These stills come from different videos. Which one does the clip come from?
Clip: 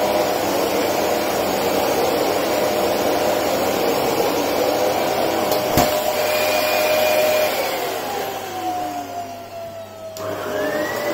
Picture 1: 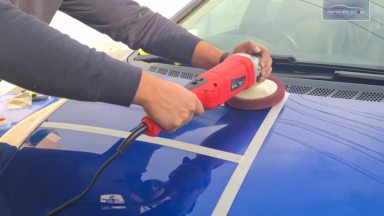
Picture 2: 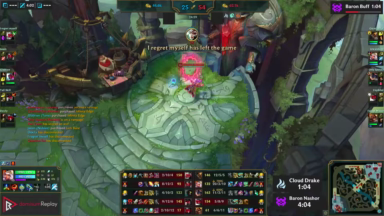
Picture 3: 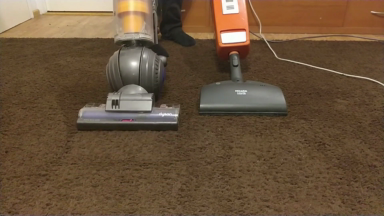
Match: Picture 3